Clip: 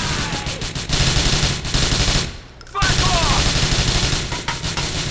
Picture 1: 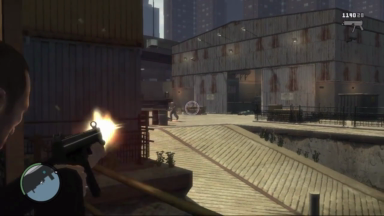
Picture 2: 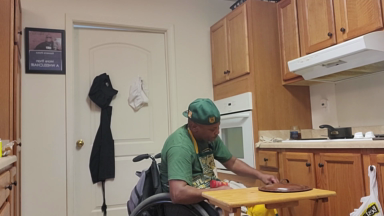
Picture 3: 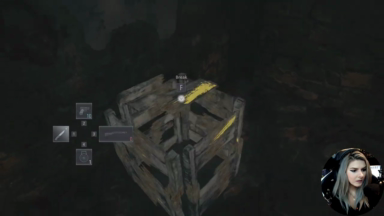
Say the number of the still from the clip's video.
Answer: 1